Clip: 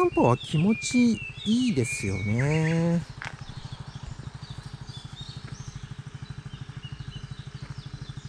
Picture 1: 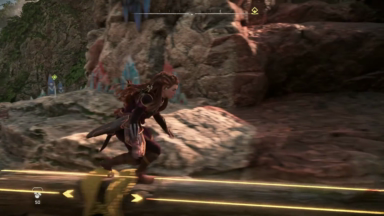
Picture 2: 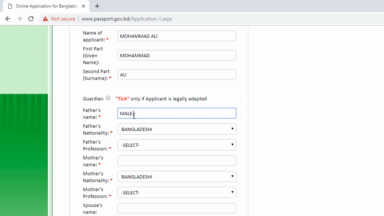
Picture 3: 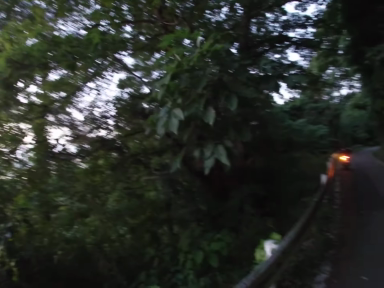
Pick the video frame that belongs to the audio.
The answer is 3